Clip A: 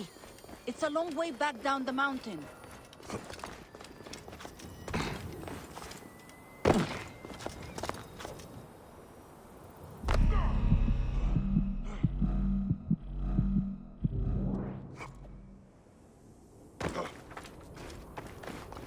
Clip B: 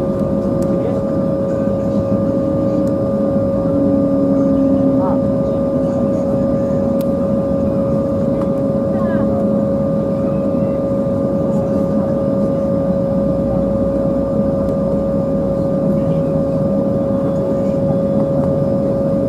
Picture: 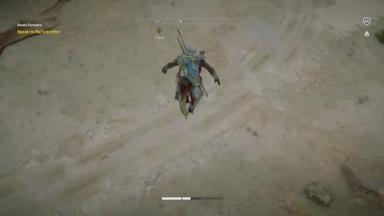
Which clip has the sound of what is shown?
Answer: A